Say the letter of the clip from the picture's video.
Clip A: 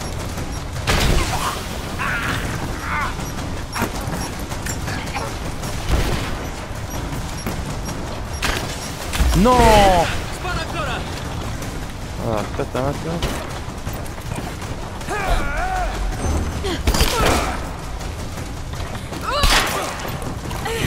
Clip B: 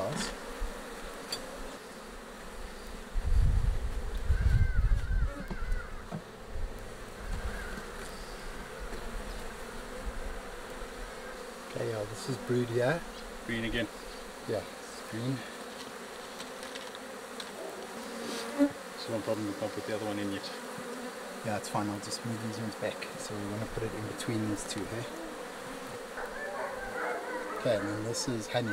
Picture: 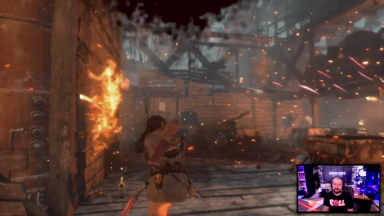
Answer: A